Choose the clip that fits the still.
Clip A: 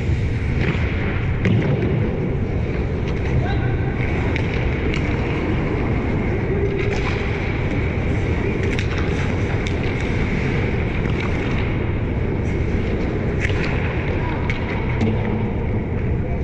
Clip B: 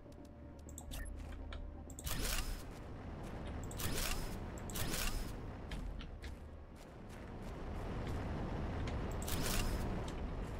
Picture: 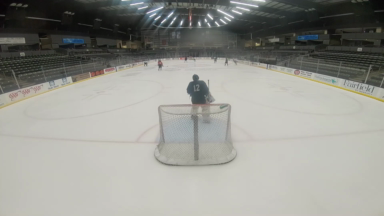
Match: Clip A